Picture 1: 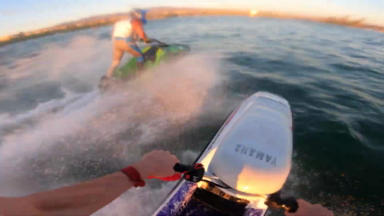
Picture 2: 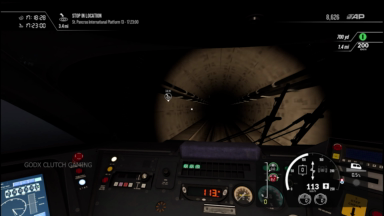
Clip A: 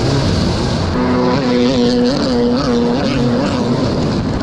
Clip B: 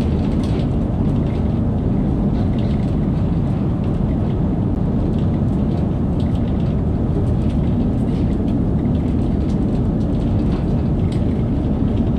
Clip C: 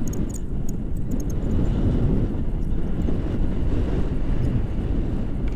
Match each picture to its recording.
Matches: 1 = A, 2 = B